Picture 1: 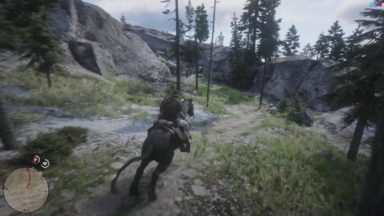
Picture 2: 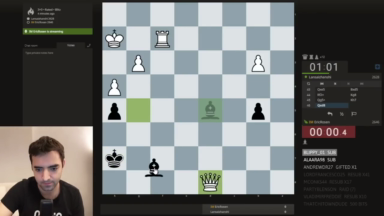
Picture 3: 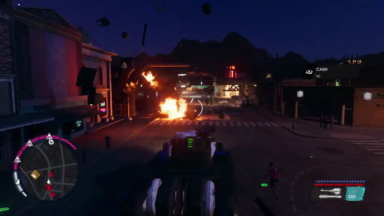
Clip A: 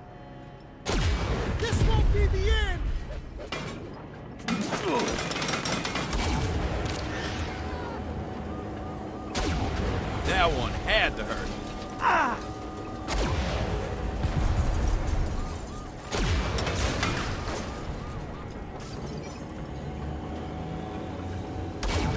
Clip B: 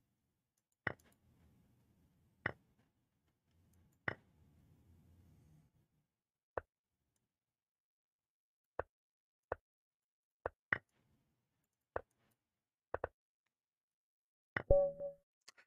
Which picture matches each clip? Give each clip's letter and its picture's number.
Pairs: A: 3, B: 2